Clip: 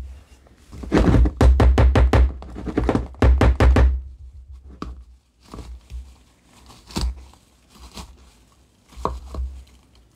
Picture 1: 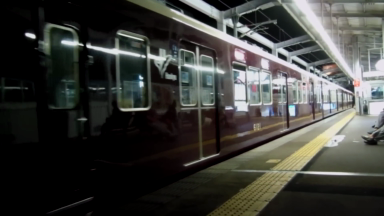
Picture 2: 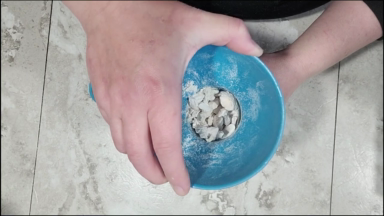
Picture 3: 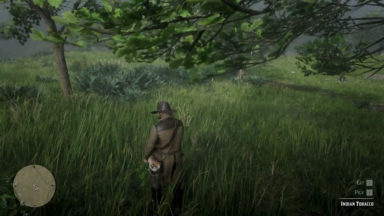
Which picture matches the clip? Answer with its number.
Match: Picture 2